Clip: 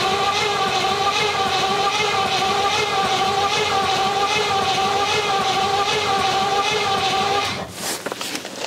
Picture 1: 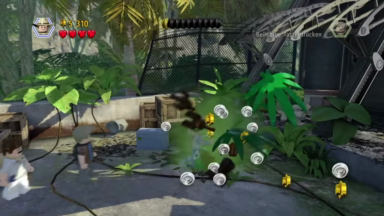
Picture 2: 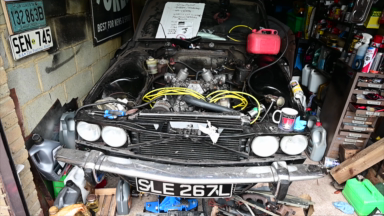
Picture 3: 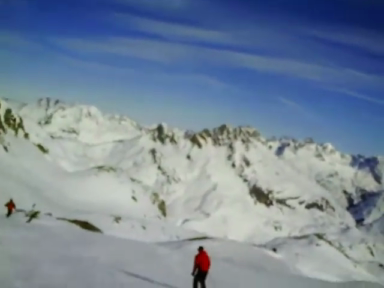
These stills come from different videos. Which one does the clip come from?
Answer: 2